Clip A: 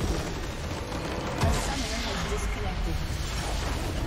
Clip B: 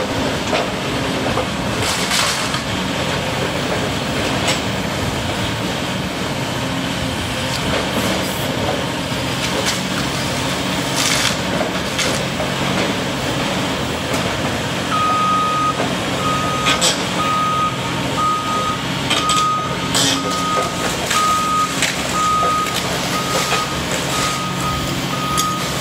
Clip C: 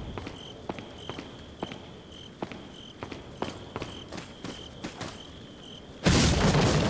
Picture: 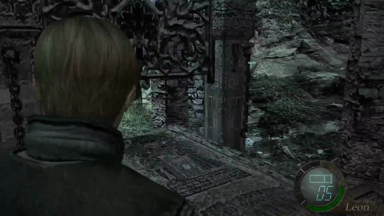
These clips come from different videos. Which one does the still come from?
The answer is C